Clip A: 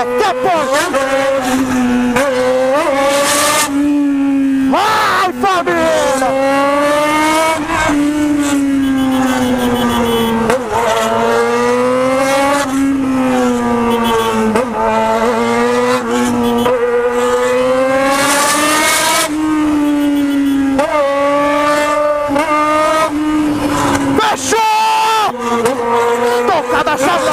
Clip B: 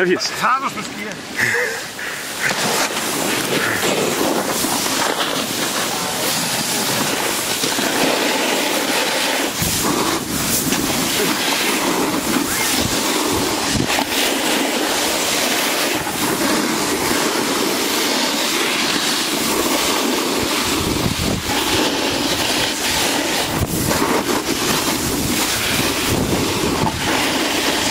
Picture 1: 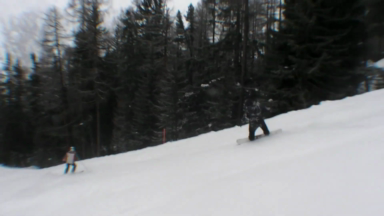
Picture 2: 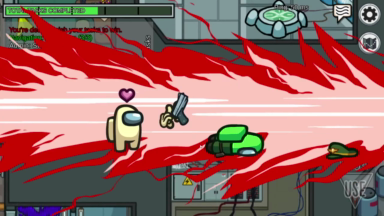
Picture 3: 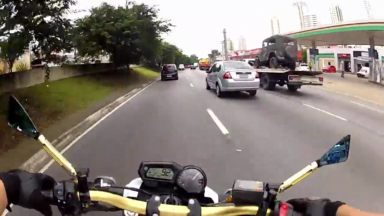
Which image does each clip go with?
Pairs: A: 3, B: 1